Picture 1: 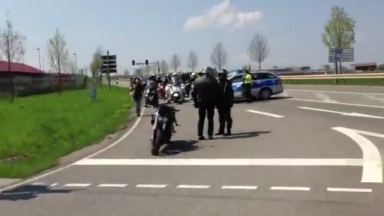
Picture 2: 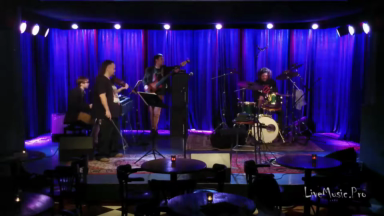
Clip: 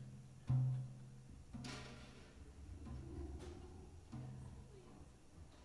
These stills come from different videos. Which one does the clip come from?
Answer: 2